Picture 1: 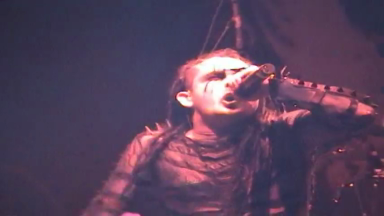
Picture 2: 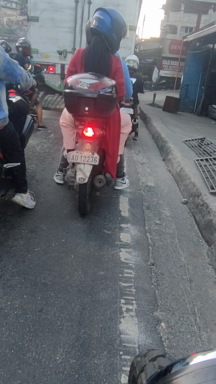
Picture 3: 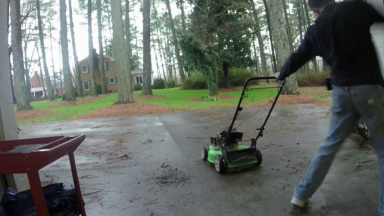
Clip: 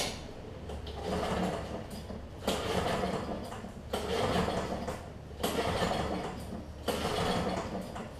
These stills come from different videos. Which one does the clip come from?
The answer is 3